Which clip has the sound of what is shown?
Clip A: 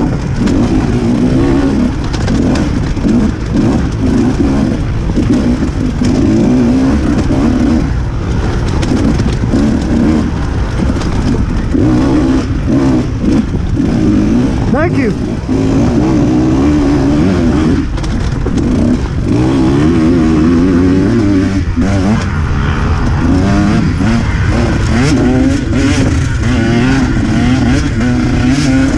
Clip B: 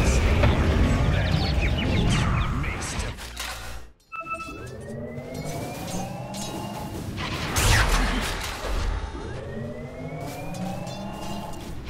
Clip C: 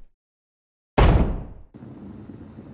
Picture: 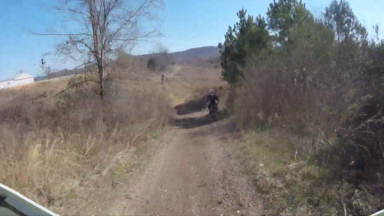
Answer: A